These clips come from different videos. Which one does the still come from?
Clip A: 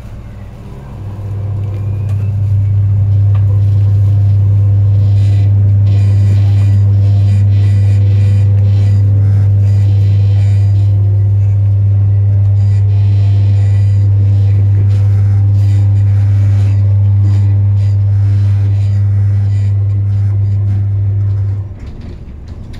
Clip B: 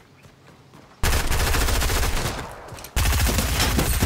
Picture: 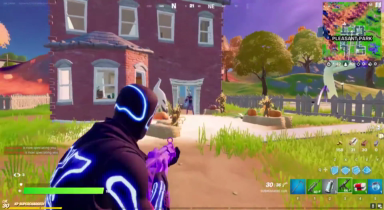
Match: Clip B